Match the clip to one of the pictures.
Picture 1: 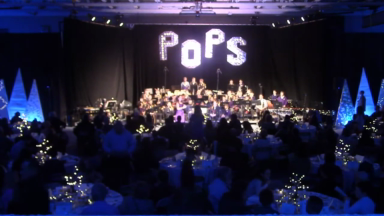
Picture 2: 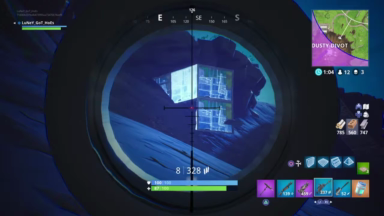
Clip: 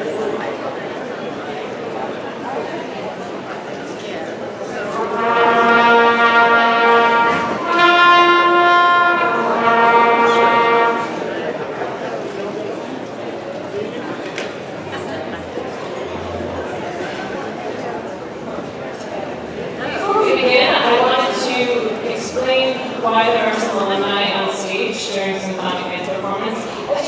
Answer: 1